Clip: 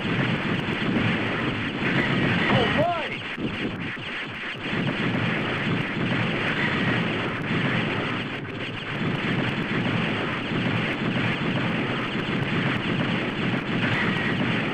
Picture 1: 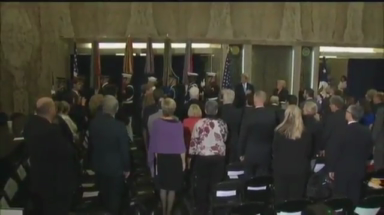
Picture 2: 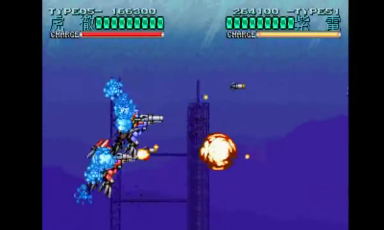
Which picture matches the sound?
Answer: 2